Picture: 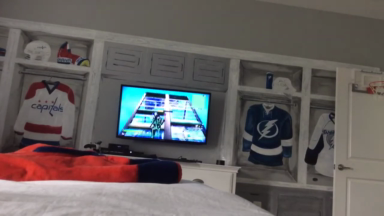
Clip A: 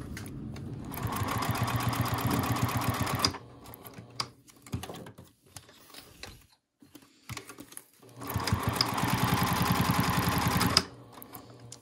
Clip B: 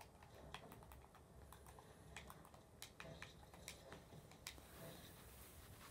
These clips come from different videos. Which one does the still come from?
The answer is B